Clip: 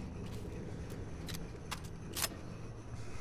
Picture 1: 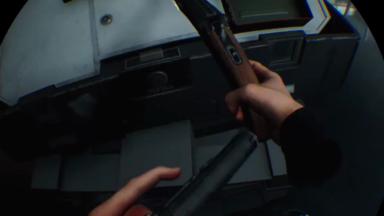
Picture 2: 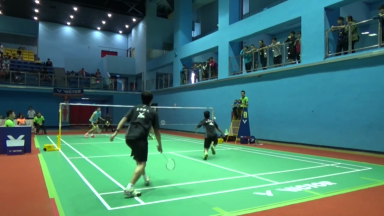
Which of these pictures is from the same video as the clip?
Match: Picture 1